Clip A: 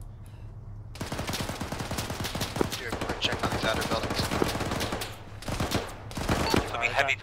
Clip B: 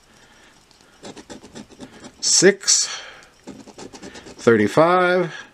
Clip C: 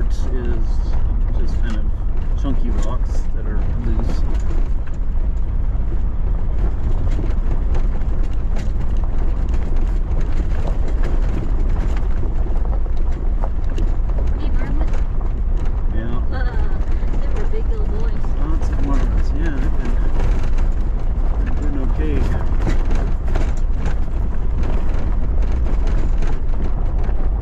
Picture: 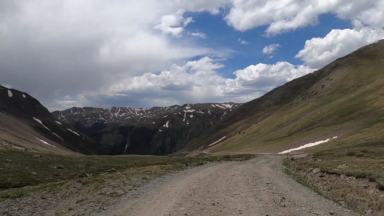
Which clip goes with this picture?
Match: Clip C